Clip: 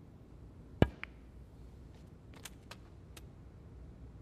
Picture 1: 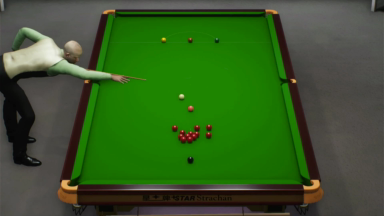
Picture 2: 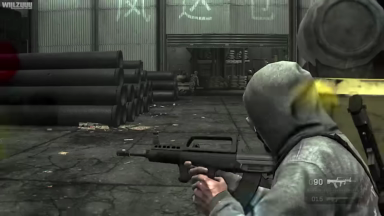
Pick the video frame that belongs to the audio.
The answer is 1